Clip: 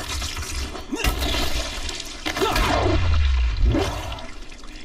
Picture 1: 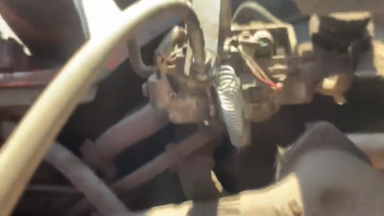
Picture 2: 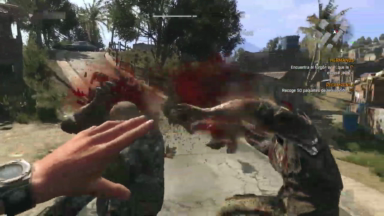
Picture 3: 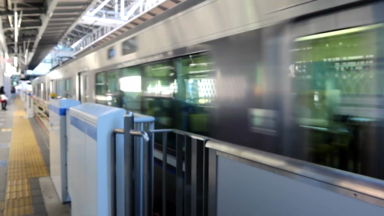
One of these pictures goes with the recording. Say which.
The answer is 2